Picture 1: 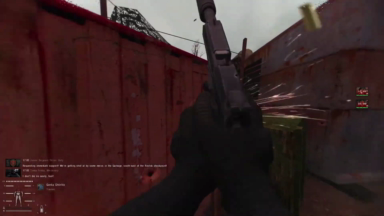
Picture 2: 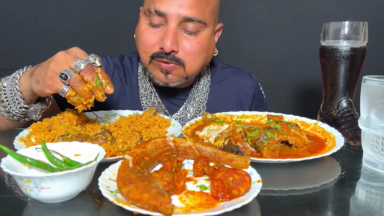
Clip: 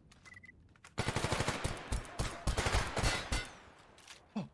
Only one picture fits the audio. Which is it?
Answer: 1